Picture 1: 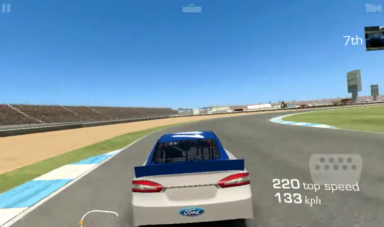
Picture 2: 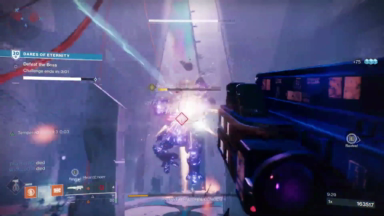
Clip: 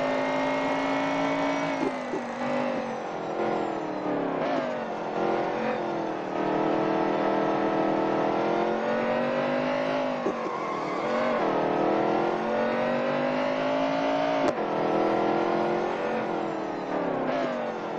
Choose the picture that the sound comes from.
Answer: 1